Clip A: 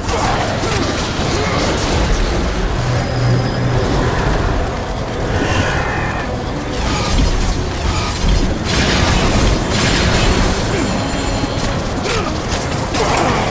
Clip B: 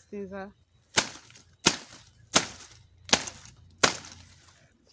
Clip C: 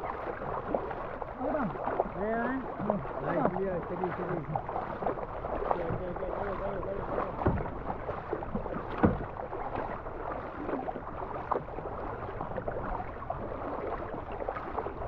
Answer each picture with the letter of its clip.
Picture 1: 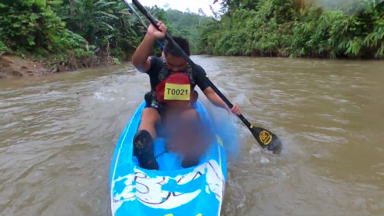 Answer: C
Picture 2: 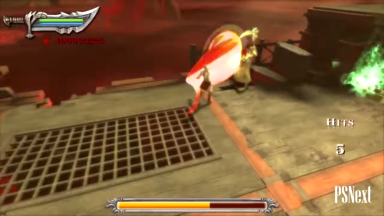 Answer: A